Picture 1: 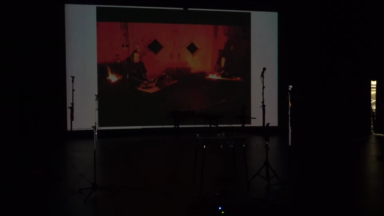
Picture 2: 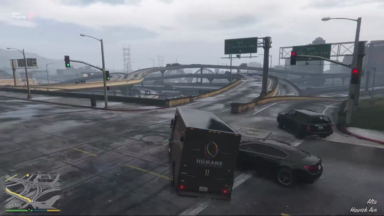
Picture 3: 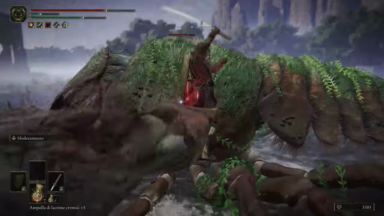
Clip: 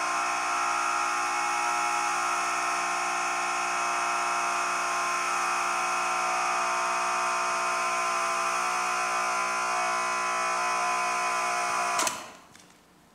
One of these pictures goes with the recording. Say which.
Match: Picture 1